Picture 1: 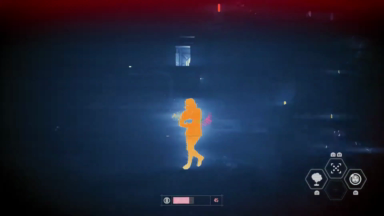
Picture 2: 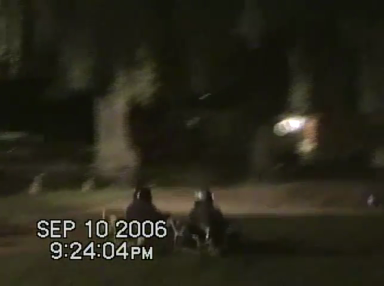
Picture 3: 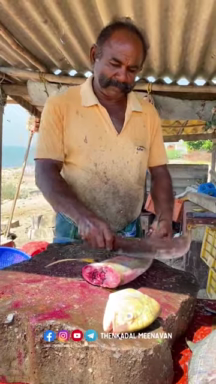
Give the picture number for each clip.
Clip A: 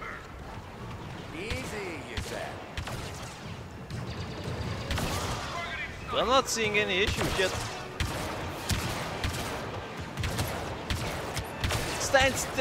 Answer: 1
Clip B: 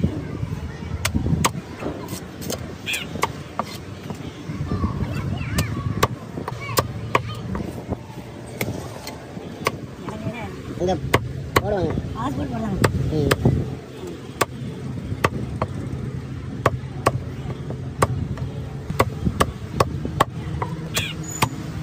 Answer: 3